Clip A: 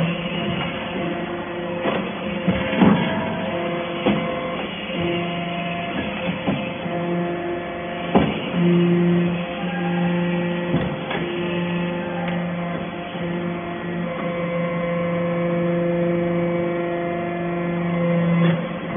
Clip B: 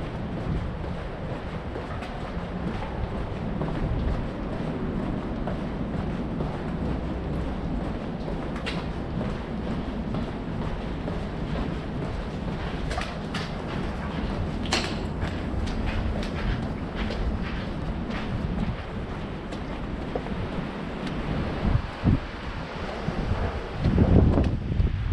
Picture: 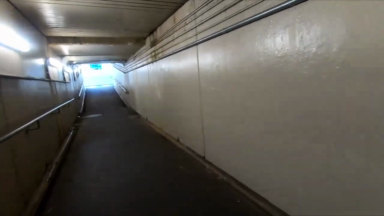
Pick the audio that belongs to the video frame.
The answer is B